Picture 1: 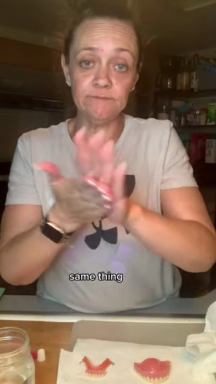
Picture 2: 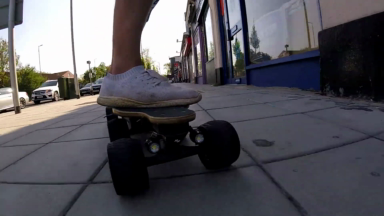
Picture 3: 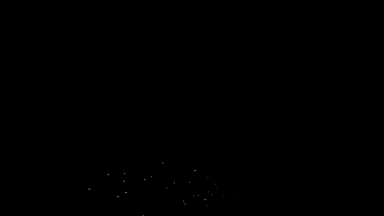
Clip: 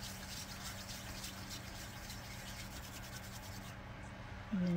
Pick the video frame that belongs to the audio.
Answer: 1